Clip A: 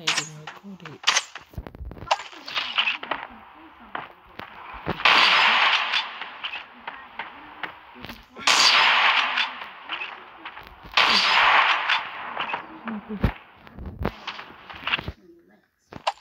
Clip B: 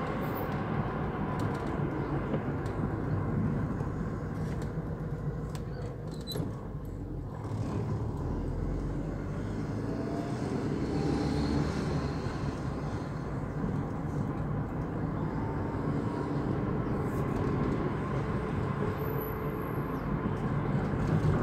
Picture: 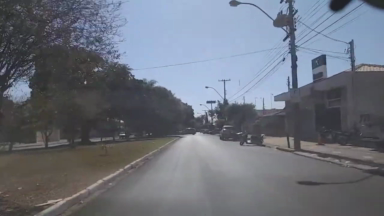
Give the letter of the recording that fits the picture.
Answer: B